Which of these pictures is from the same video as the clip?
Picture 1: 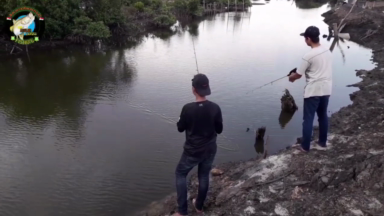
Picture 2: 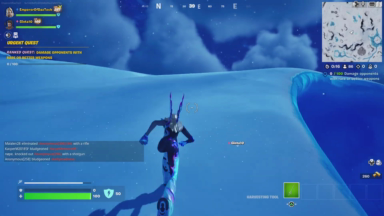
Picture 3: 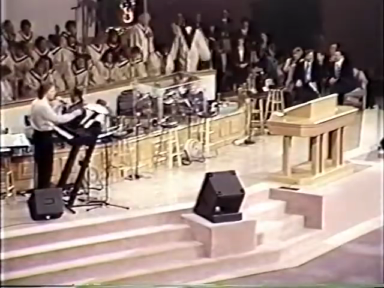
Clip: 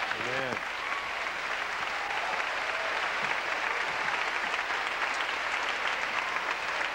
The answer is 3